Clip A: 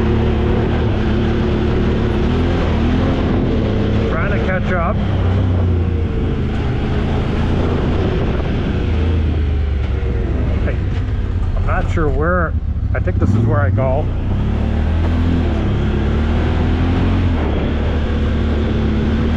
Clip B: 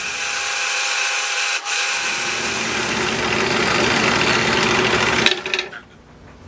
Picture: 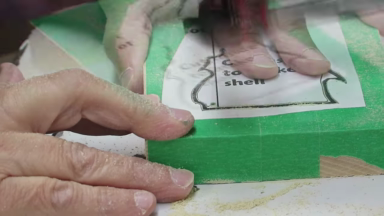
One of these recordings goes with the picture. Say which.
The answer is B